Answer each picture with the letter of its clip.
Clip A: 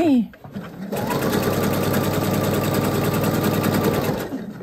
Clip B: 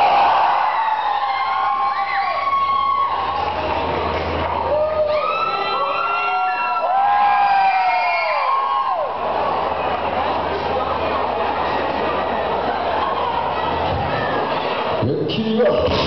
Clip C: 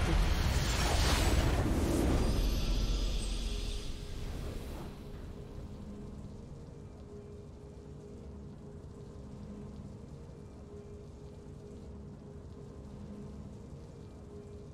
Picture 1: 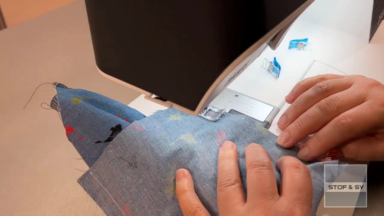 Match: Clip A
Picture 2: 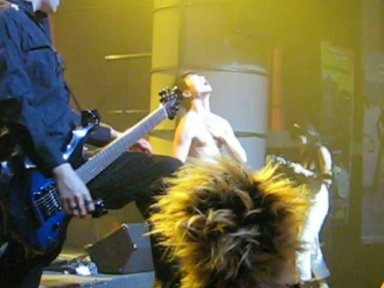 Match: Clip B